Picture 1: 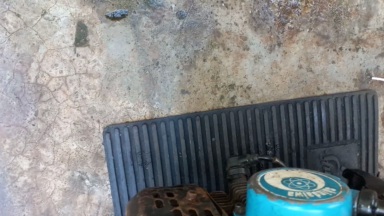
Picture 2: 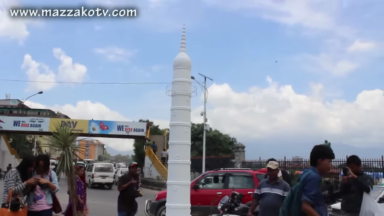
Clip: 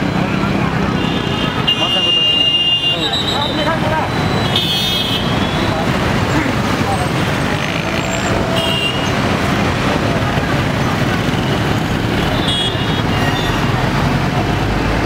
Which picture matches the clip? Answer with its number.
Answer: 2